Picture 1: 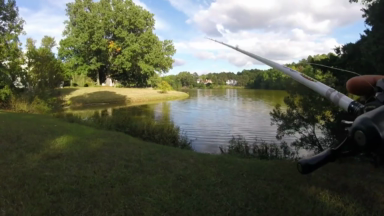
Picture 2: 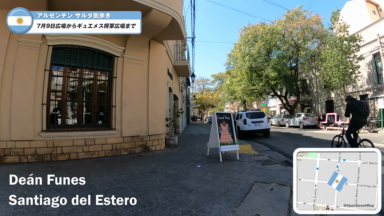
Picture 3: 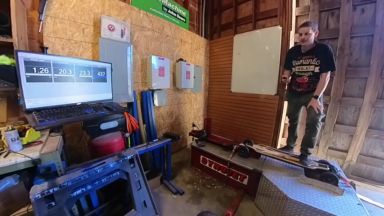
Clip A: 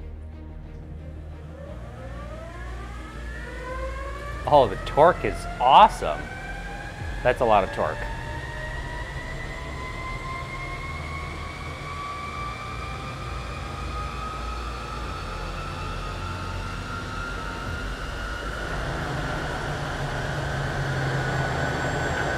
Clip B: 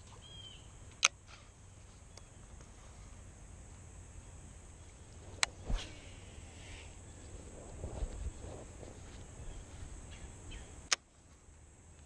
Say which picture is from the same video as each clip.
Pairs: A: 3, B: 1